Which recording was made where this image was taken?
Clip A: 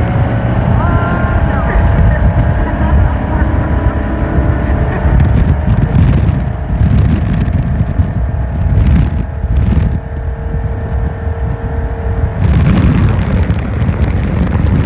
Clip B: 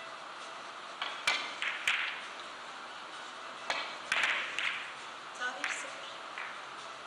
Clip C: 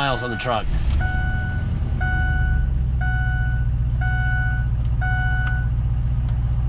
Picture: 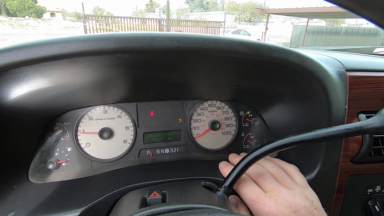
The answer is C